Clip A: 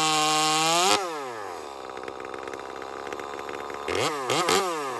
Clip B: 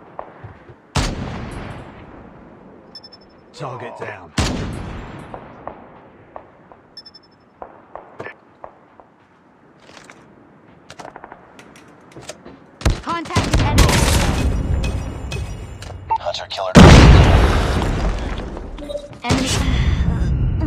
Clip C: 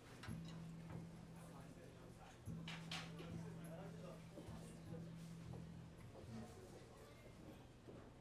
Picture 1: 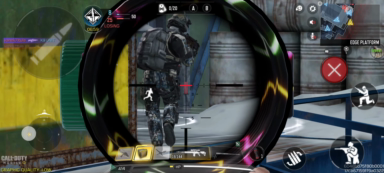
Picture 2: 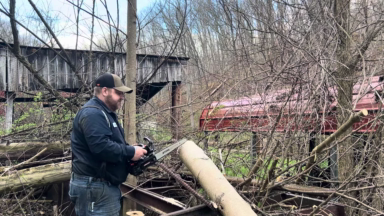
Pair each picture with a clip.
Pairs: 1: B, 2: A